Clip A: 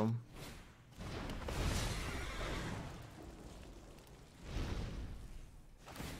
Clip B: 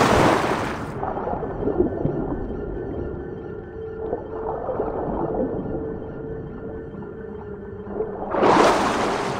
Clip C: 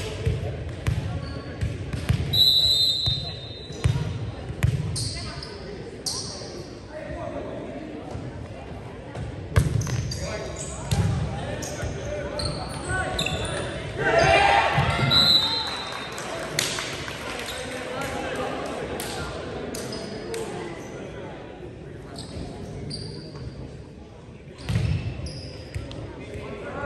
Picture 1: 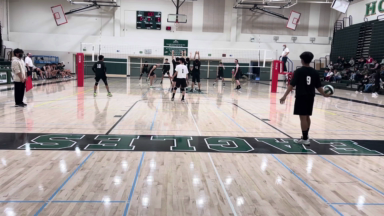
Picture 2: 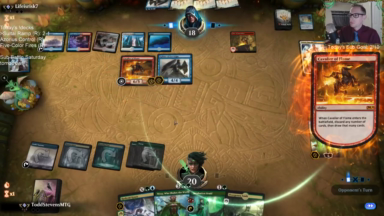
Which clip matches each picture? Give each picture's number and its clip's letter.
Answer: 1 C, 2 A